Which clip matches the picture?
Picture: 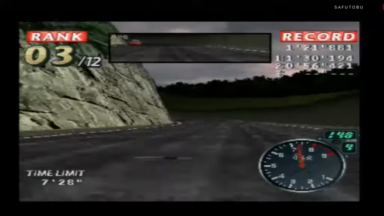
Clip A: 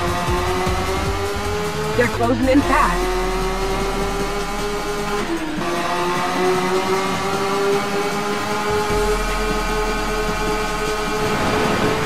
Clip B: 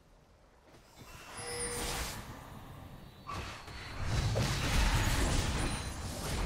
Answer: A